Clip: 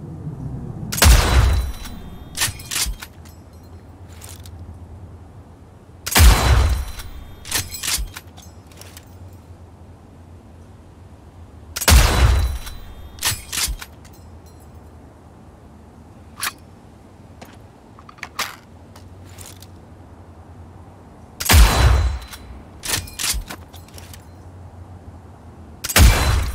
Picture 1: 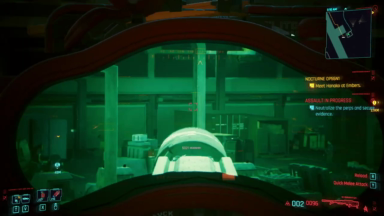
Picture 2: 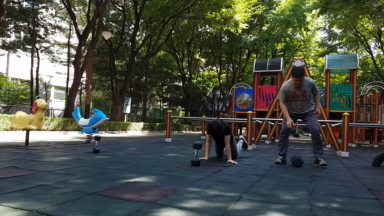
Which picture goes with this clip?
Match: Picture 1